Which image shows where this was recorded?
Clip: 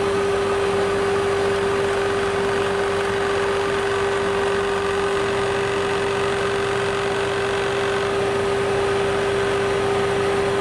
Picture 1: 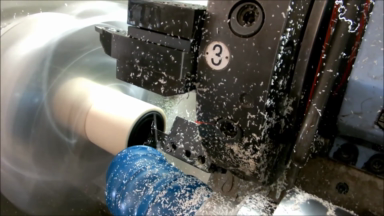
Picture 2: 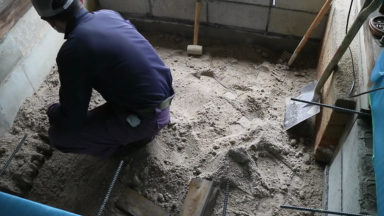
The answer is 1